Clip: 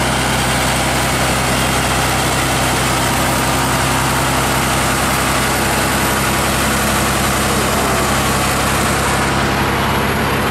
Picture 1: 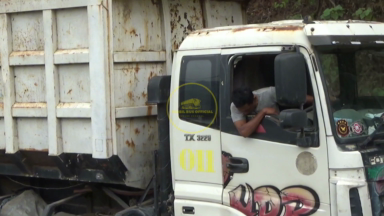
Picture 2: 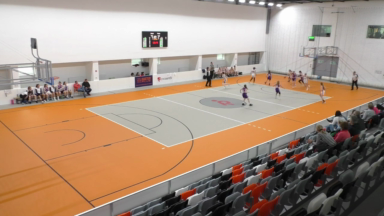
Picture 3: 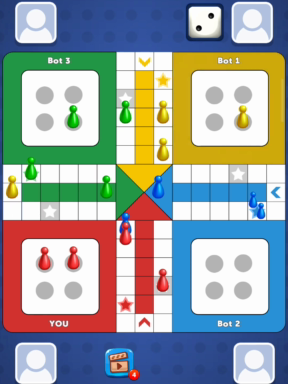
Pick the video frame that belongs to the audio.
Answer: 1